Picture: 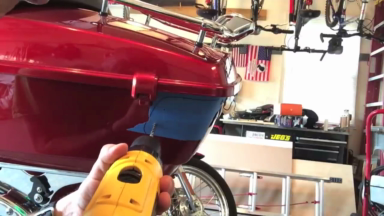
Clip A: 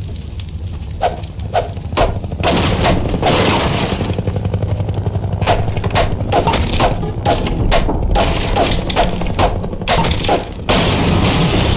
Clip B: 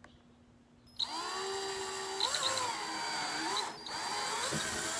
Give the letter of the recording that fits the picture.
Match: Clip B